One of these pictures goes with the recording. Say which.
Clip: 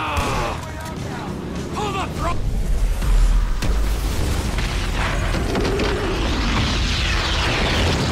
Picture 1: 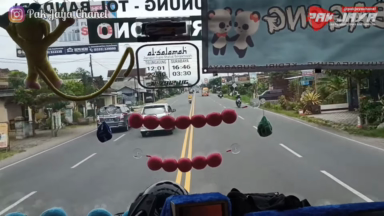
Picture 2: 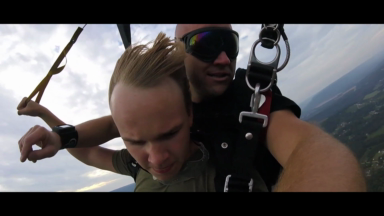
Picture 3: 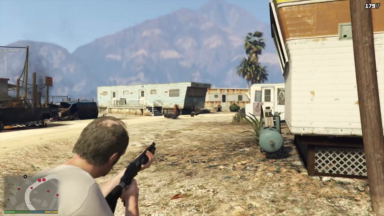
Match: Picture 3